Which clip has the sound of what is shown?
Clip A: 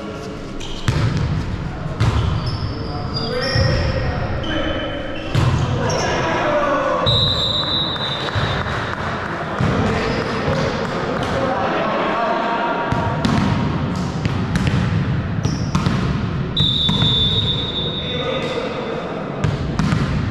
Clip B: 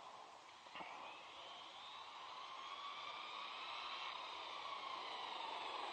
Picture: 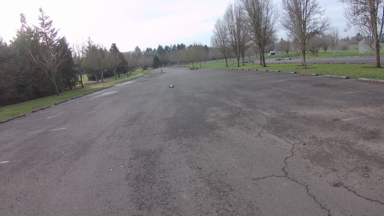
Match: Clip B